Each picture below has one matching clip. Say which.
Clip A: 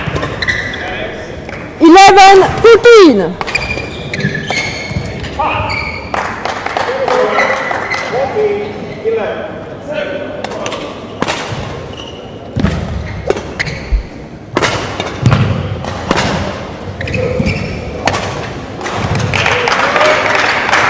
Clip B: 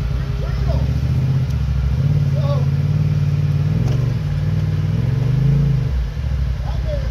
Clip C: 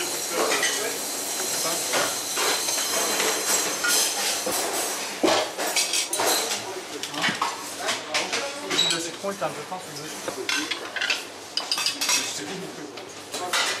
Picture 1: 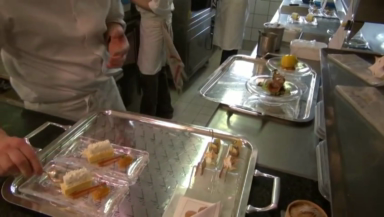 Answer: C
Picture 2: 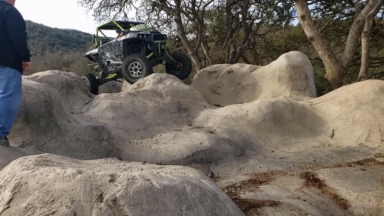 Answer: B